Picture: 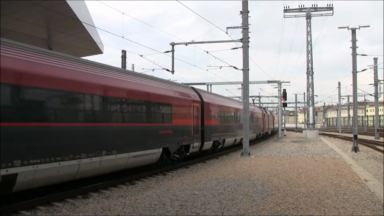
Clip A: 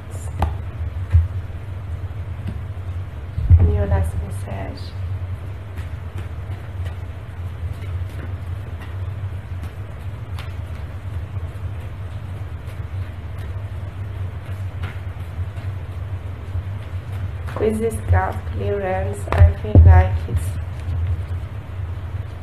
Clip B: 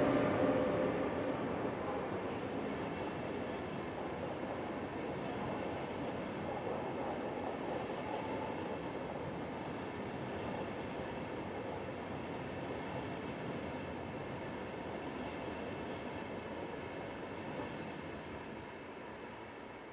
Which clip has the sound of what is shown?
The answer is B